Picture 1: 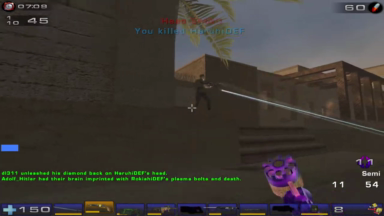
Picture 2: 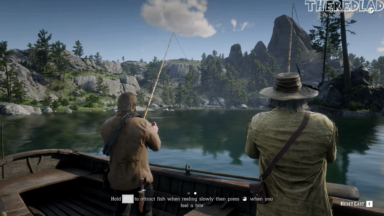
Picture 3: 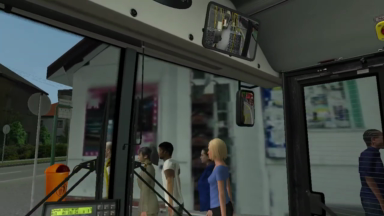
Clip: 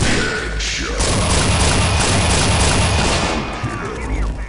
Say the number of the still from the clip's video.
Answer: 1